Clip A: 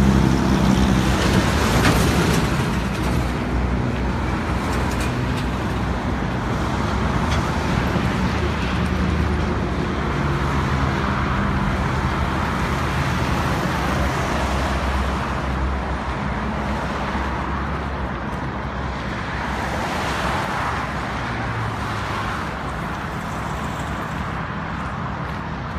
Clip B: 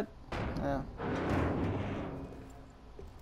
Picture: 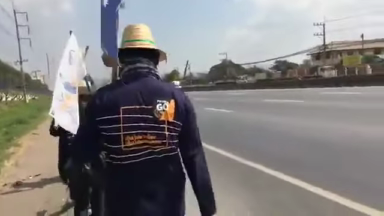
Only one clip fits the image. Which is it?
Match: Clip A